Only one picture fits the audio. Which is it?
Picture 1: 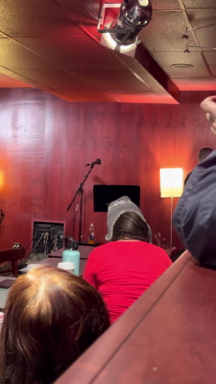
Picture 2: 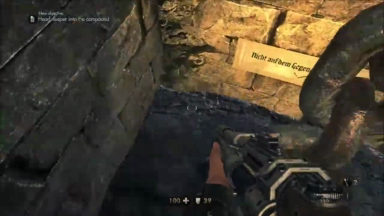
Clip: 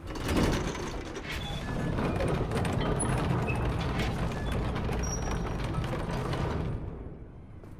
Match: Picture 2